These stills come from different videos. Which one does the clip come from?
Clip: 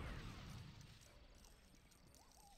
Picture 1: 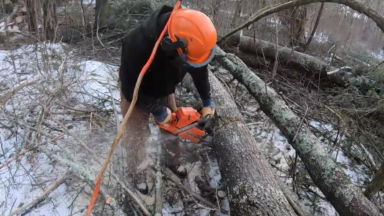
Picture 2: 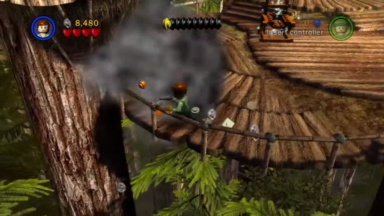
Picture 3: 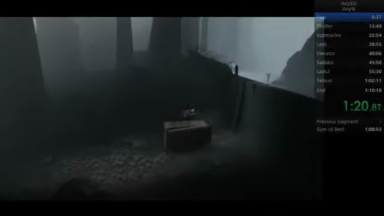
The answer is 2